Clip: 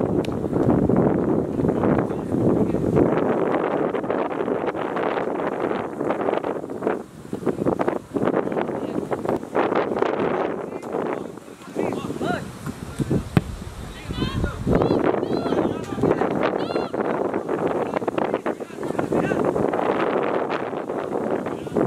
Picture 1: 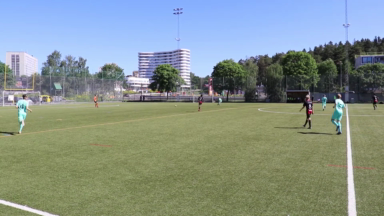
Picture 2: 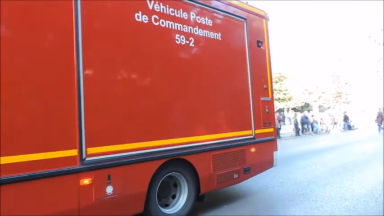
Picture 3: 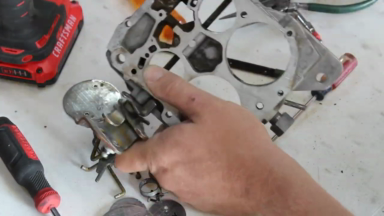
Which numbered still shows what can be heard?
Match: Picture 1